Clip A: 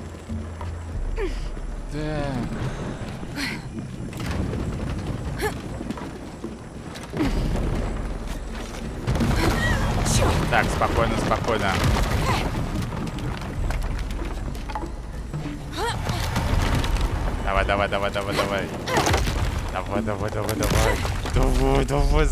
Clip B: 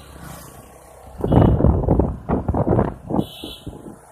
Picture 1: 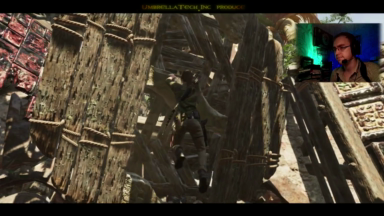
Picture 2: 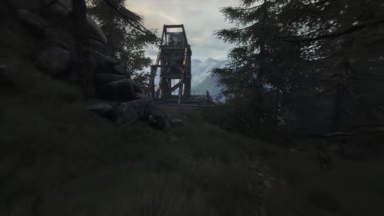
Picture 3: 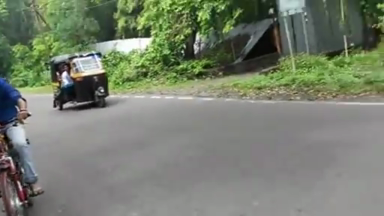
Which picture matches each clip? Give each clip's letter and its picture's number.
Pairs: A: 1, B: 3